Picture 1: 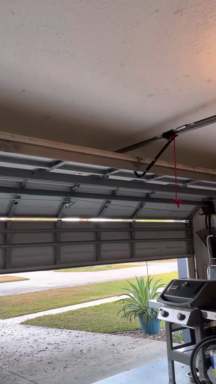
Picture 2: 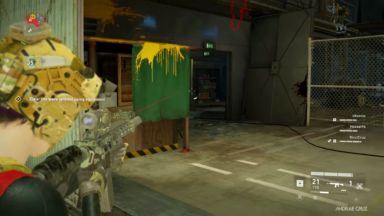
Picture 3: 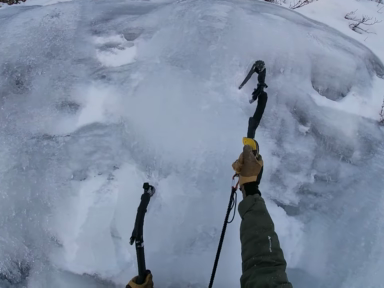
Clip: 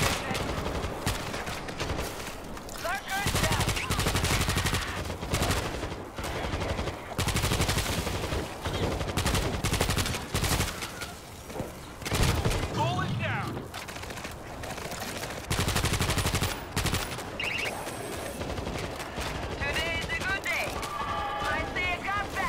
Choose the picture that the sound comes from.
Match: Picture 2